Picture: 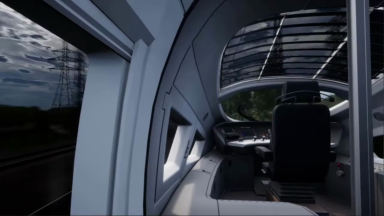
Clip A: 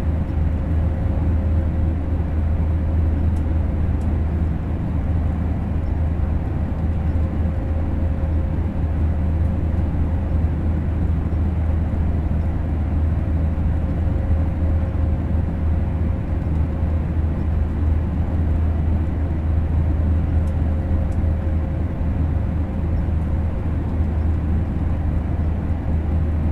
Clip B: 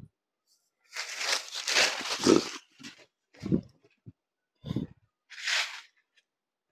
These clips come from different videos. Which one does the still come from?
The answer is A